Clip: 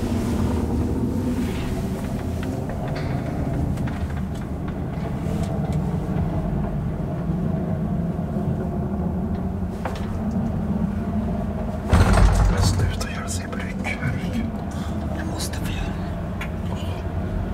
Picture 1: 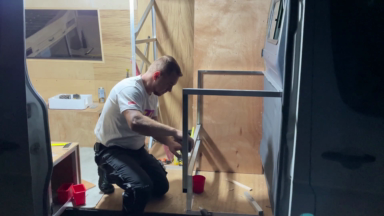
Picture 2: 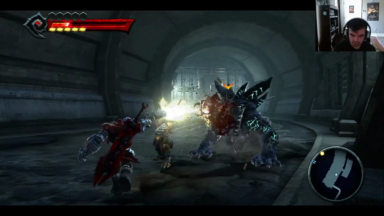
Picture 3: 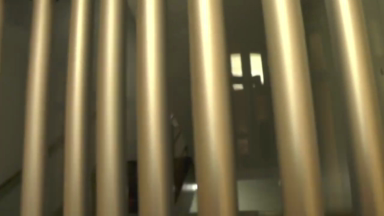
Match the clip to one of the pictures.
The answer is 3